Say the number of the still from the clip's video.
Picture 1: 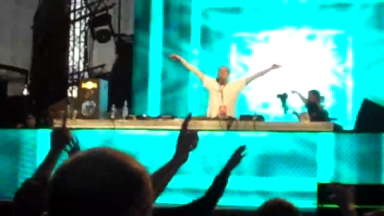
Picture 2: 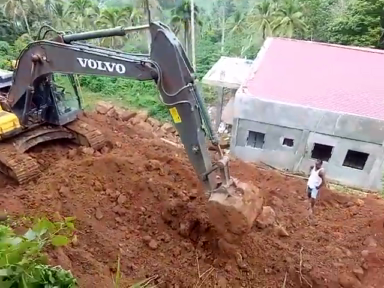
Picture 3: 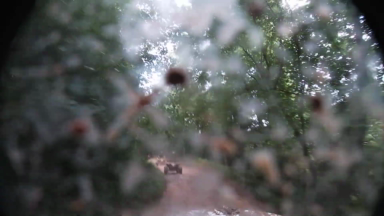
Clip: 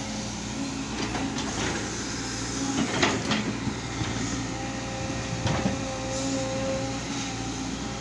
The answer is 2